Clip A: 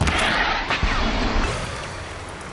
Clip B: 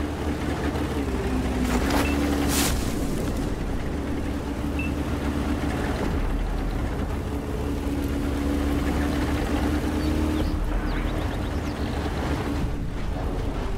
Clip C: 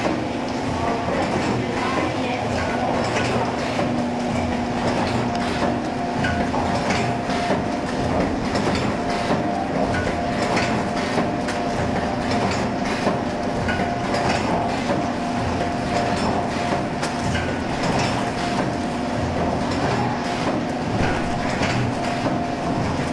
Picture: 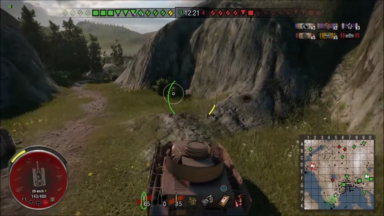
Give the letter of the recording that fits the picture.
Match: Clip B